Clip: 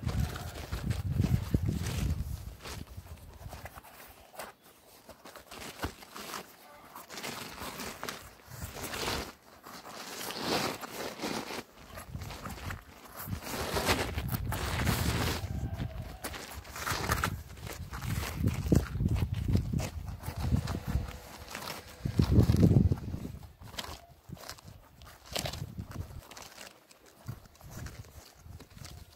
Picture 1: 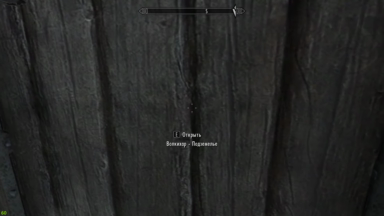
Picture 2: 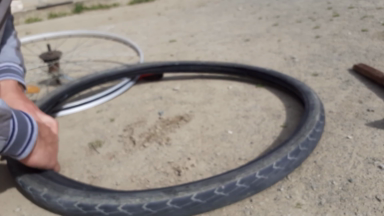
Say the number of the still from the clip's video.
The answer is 2